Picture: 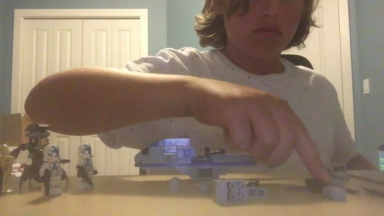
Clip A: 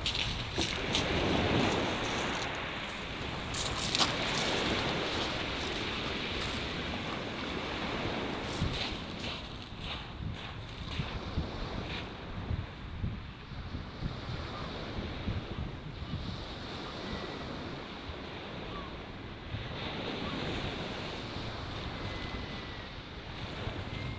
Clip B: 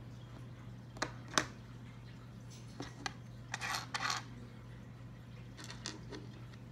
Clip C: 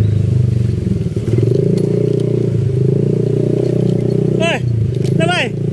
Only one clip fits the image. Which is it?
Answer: B